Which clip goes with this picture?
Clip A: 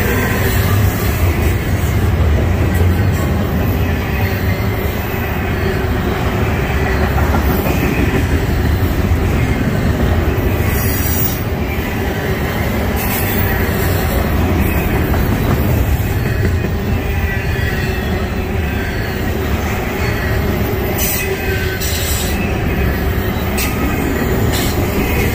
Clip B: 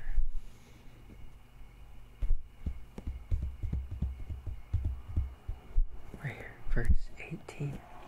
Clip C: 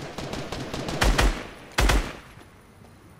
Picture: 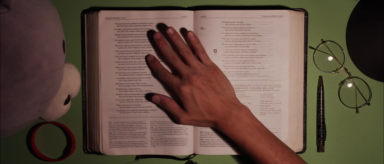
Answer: B